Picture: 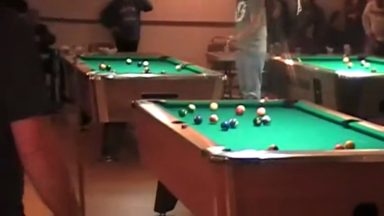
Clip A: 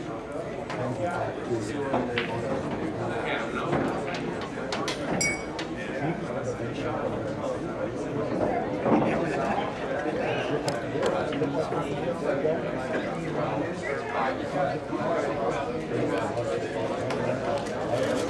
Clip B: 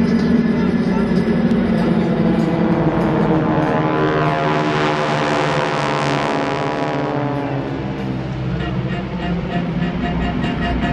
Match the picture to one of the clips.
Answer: A